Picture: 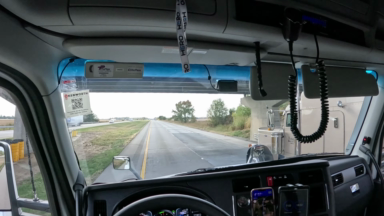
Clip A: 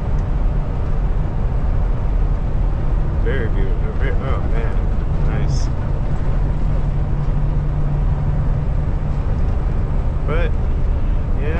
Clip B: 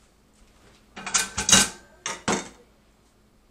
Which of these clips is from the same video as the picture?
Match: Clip A